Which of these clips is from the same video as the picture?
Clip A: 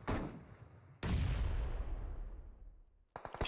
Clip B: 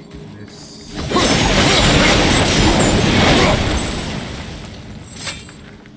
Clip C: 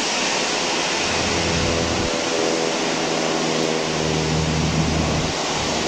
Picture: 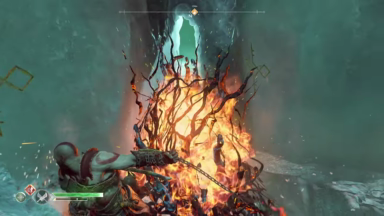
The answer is B